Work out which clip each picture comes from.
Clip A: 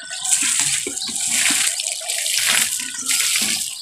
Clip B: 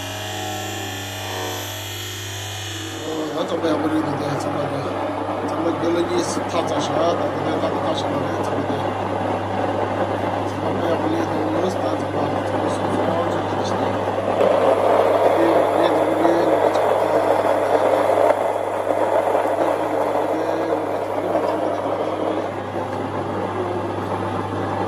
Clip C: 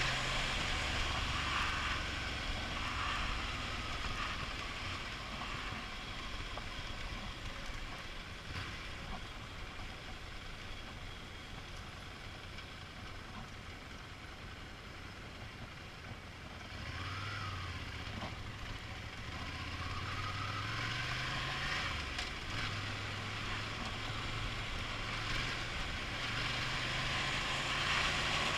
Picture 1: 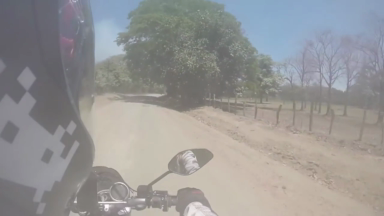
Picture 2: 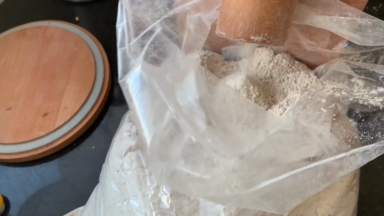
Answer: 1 C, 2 B